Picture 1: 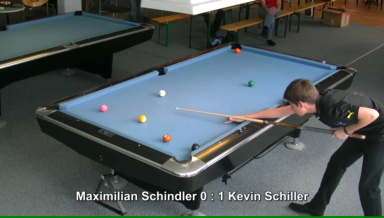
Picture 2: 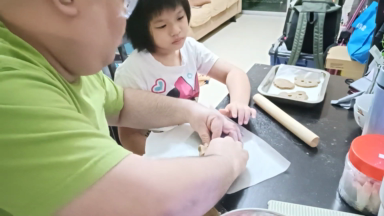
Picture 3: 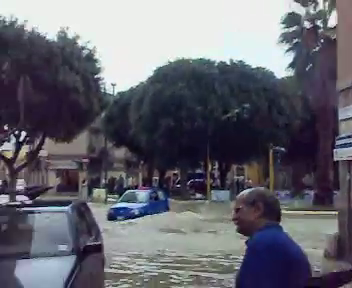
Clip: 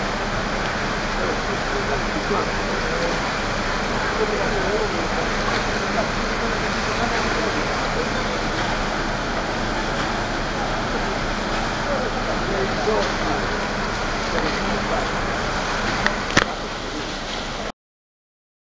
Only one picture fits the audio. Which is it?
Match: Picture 3